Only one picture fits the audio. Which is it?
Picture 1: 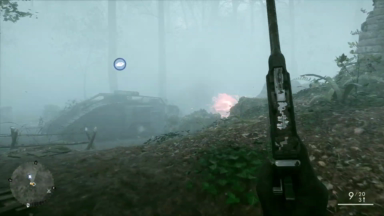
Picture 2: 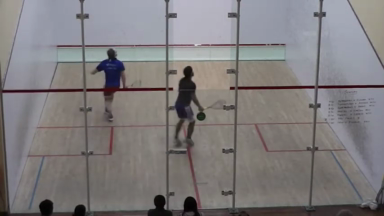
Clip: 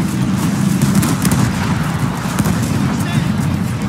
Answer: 1